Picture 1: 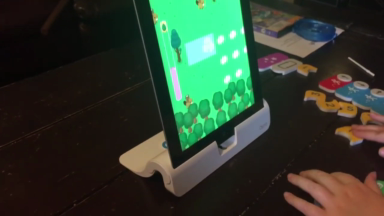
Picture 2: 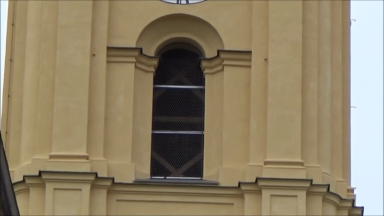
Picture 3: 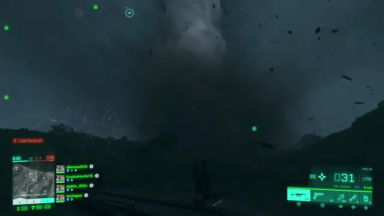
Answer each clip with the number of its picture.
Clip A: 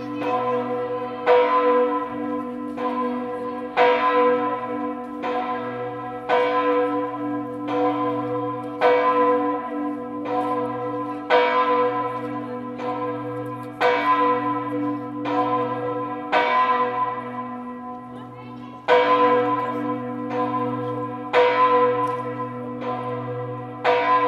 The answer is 2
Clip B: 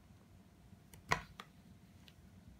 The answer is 1